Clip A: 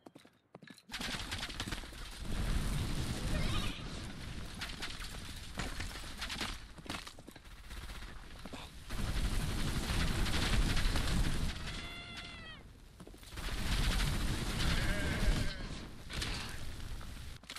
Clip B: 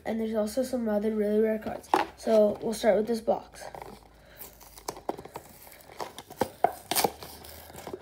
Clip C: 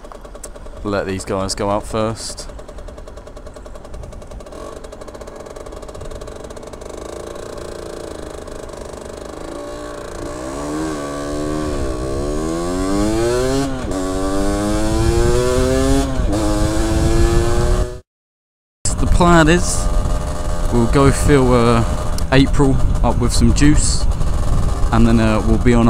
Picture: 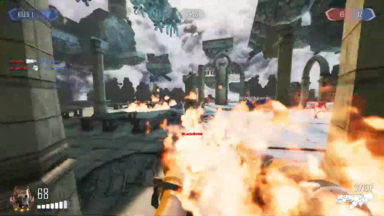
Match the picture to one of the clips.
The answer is A